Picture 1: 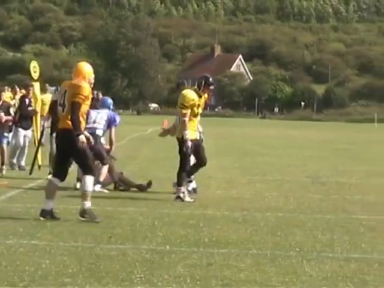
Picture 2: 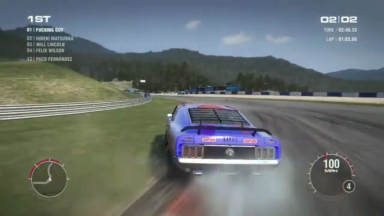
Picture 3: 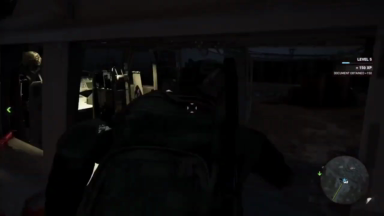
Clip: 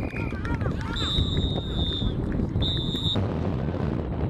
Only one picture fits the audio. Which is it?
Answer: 1